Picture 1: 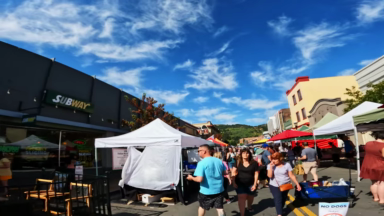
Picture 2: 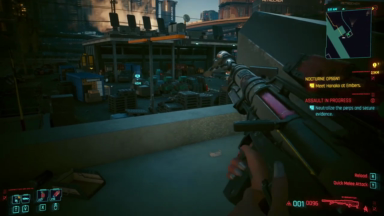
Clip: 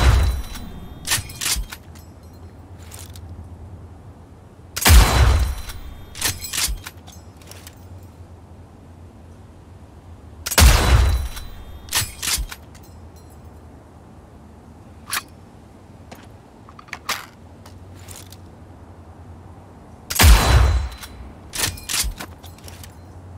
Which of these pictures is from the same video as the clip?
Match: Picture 2